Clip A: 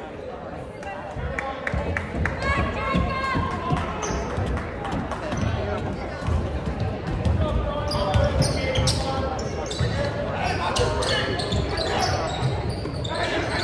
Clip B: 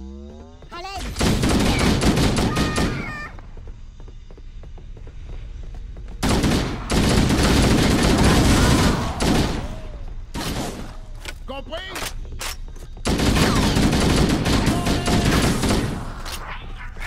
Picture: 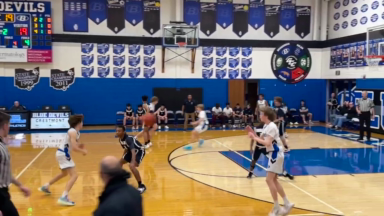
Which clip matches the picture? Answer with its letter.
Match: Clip A